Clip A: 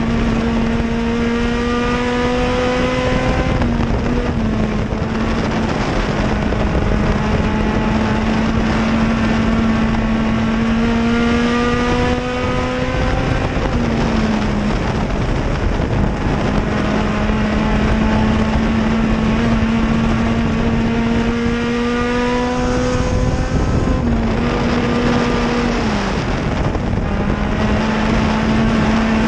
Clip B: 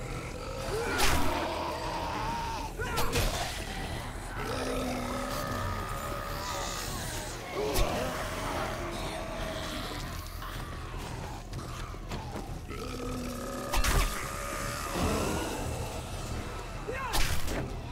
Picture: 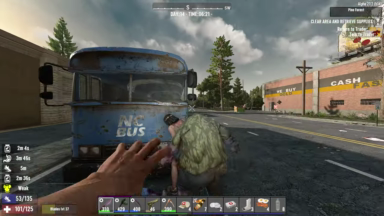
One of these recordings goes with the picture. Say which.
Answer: B